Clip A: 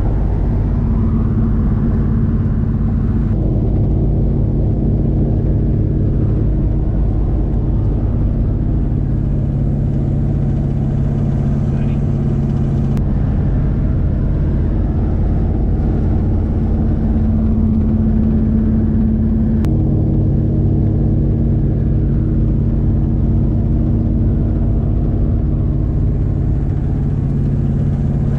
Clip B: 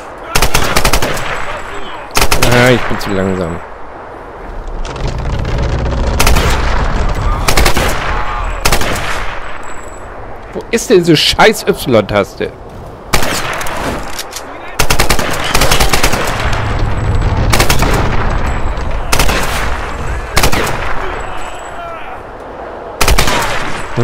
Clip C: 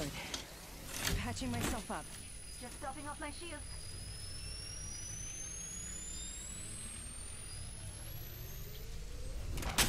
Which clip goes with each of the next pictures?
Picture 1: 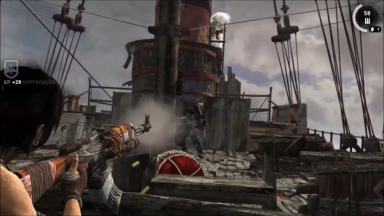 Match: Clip B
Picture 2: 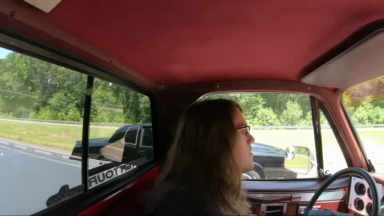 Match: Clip A